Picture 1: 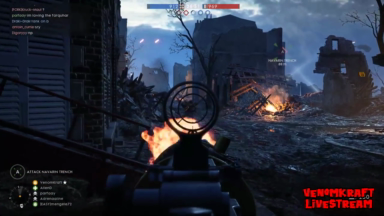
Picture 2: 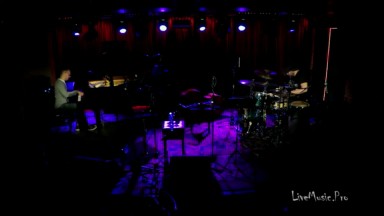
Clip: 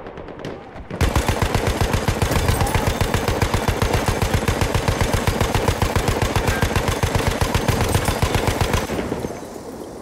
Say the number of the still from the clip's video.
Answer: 1